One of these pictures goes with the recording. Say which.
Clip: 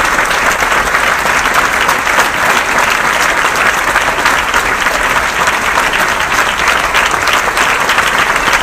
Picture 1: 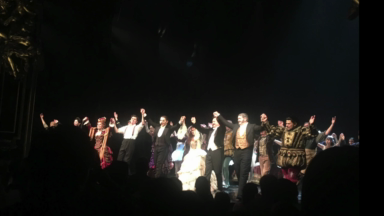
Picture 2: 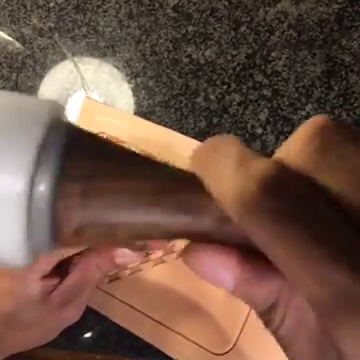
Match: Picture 1